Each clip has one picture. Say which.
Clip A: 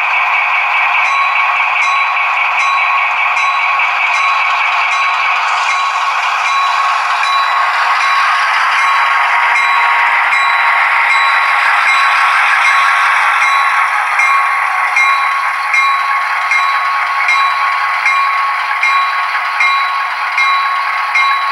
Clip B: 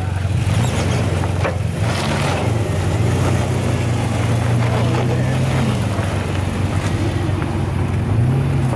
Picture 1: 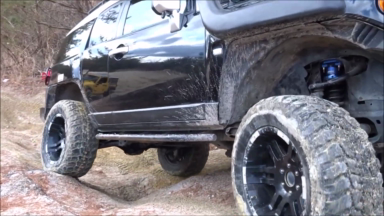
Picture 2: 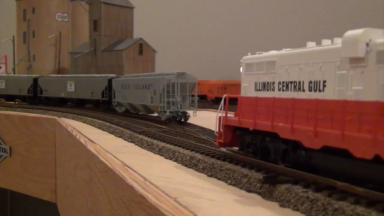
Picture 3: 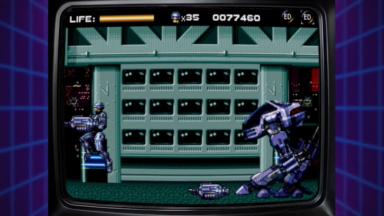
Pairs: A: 2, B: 1